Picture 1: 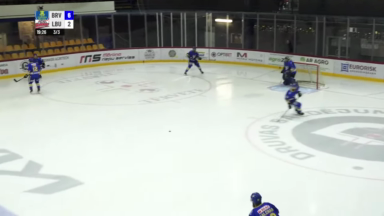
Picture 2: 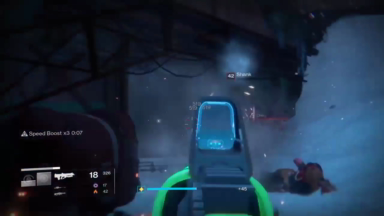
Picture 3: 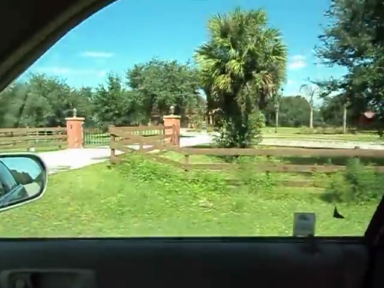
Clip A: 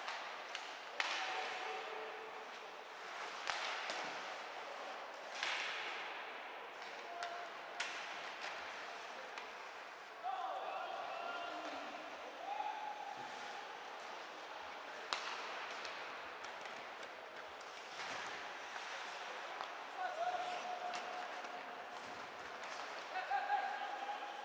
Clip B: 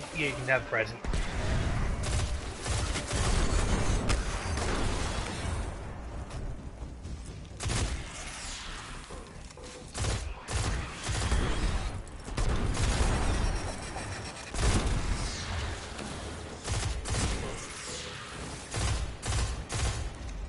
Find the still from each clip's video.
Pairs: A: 1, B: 2